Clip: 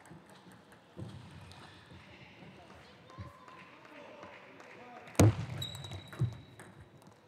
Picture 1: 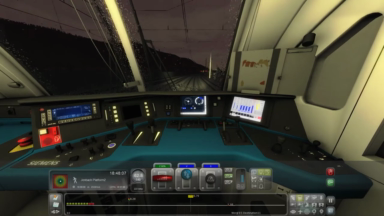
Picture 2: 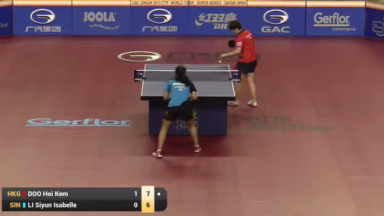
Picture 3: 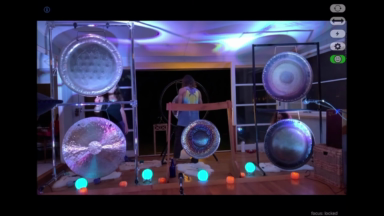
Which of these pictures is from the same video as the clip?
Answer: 2